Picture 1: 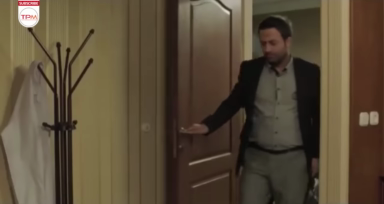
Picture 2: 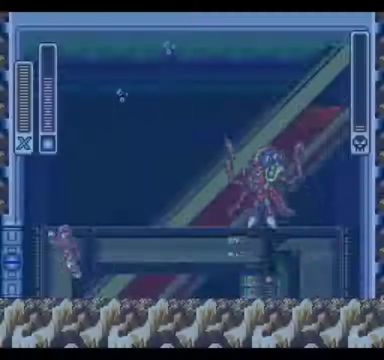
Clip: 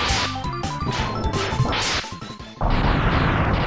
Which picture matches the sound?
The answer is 2